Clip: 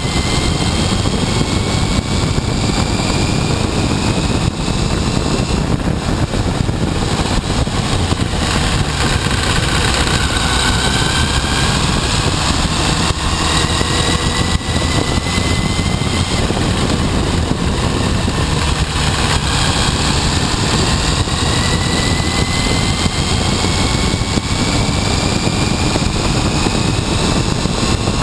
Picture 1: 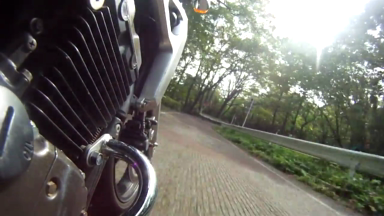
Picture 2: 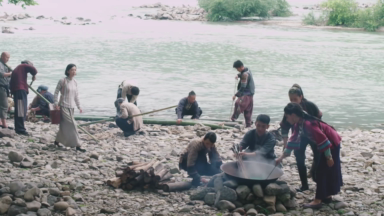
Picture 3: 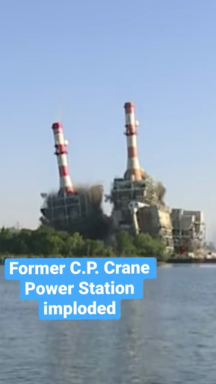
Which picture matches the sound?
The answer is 1